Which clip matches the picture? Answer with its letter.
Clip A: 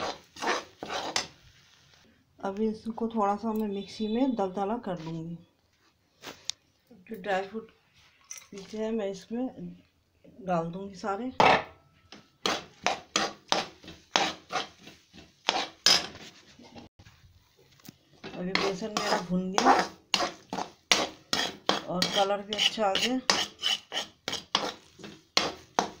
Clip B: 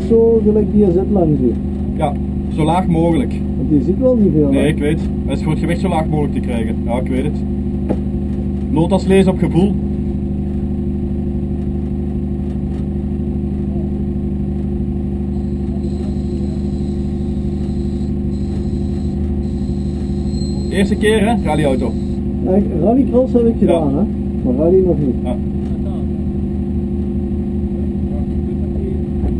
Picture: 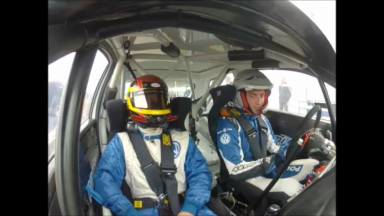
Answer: B